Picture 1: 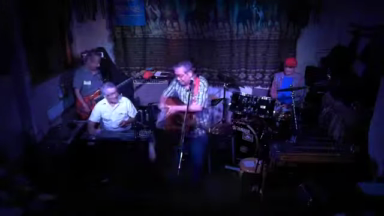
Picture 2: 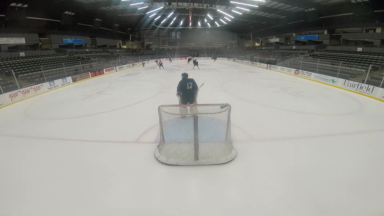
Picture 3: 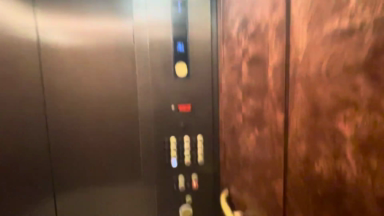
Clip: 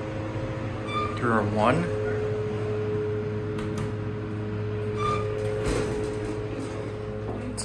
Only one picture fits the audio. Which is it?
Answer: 3